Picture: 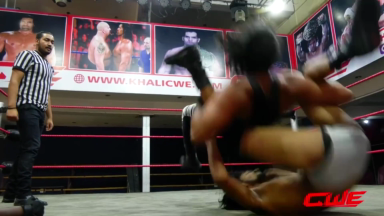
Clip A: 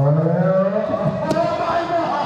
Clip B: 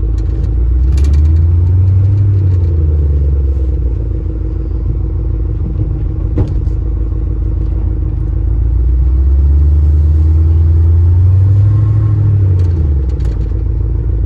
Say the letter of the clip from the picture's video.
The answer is A